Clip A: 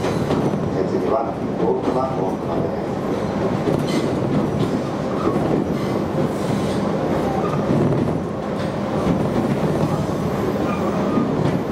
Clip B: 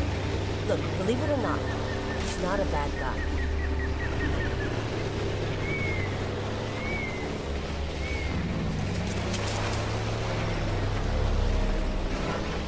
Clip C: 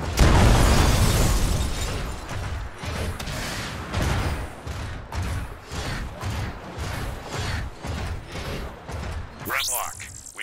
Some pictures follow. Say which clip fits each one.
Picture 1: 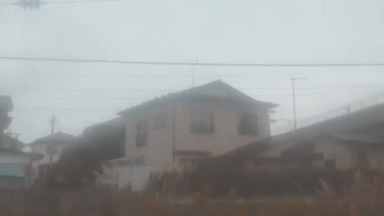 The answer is A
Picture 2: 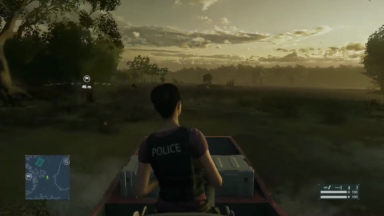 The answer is B